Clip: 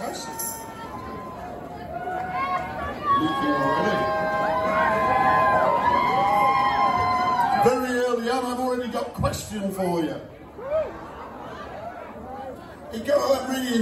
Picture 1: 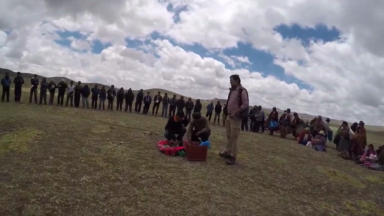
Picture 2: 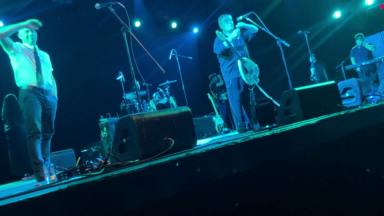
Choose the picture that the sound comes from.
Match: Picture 2